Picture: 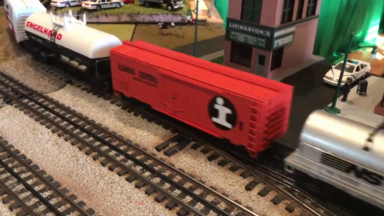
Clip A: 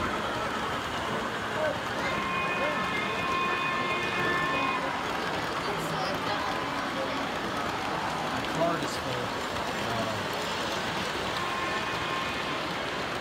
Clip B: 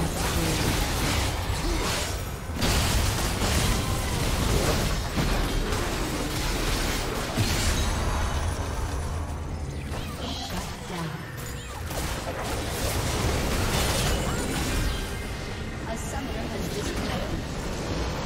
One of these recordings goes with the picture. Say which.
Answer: A